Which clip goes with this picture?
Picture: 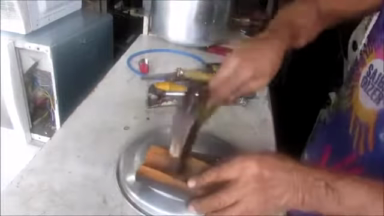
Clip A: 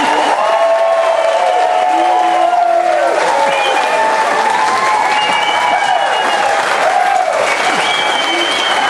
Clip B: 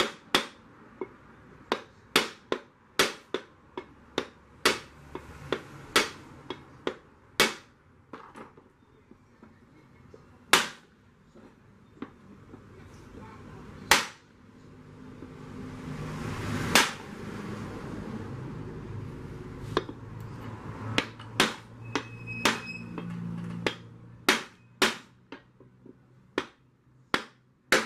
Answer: B